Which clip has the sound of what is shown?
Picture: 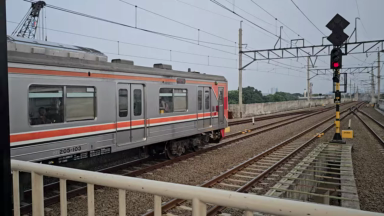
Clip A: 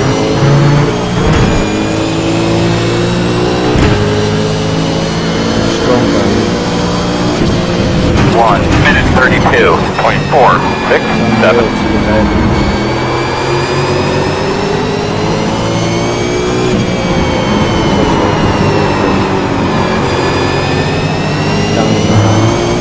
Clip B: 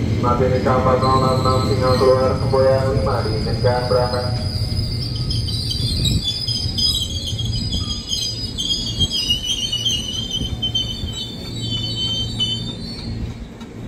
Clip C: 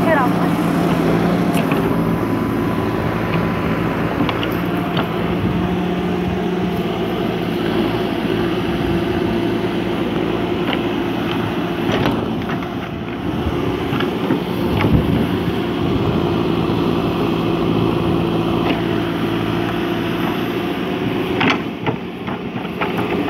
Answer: B